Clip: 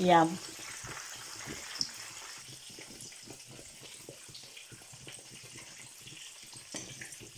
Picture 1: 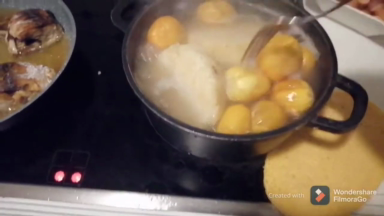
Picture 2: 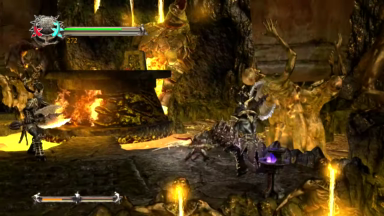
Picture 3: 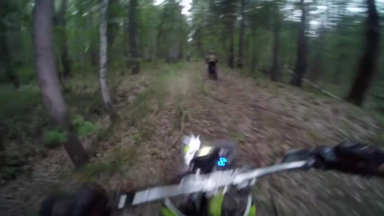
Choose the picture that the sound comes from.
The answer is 1